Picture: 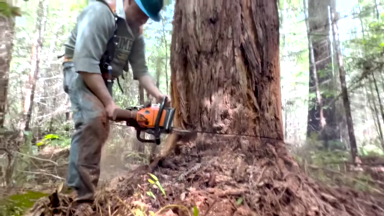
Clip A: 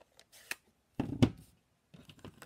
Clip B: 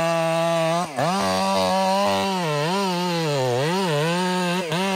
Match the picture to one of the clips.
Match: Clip B